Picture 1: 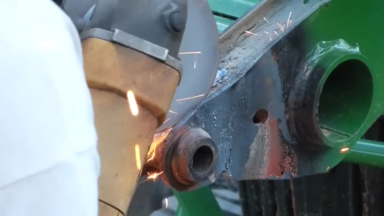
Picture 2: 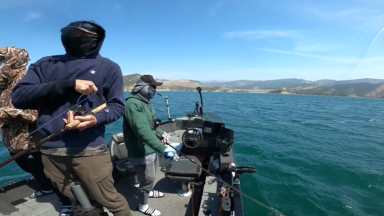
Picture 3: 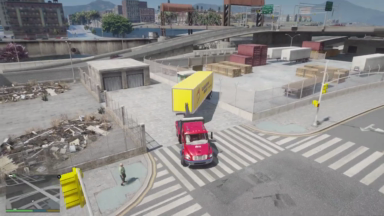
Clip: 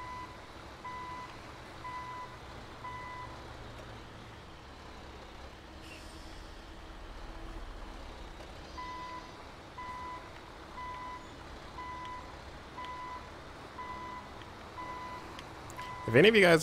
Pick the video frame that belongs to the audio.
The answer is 3